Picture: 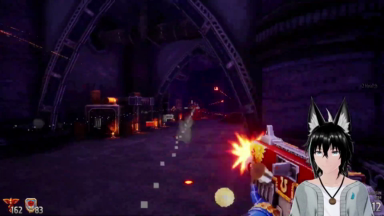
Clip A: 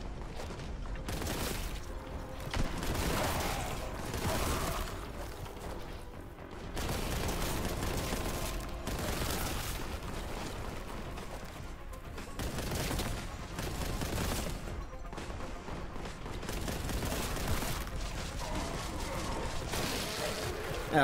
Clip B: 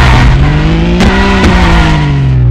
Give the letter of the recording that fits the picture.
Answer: A